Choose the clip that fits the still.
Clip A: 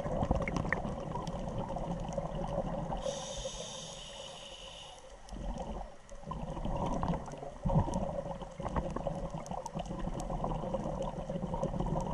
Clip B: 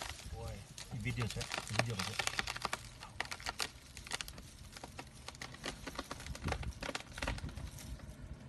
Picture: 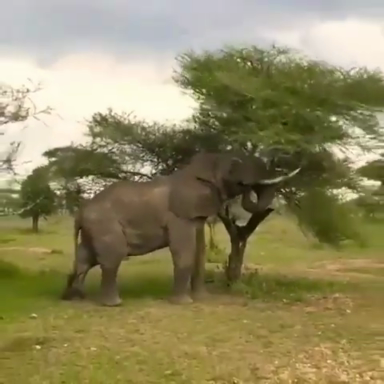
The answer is B